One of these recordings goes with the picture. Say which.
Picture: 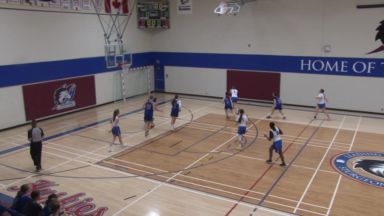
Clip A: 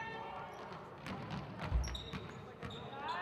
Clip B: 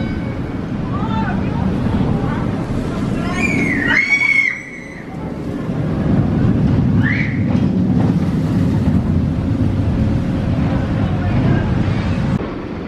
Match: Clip A